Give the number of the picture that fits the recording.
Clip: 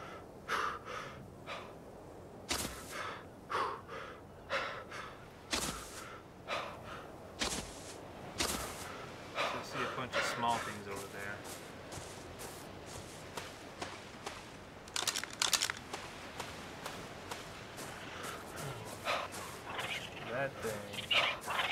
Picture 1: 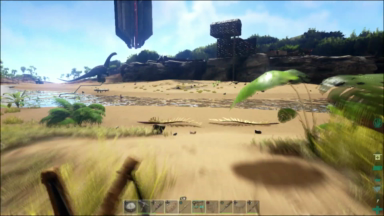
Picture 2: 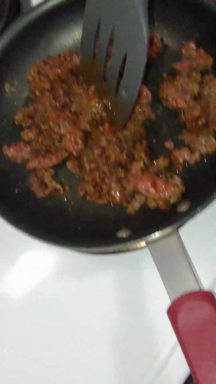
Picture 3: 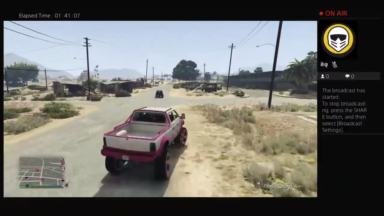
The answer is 1